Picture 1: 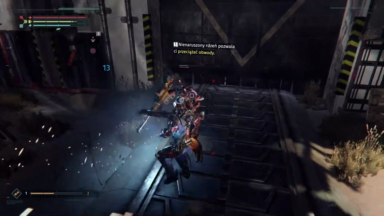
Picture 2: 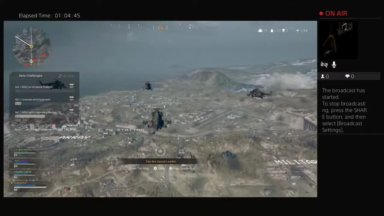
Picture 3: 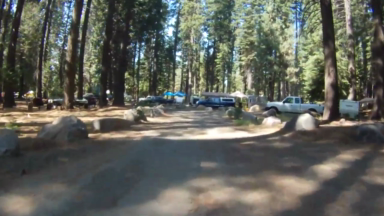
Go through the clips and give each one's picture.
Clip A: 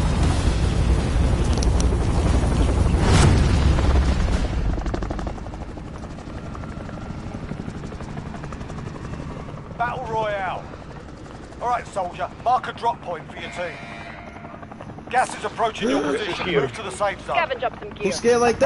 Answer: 2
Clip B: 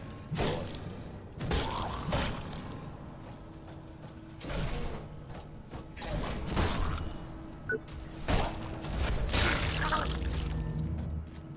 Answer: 1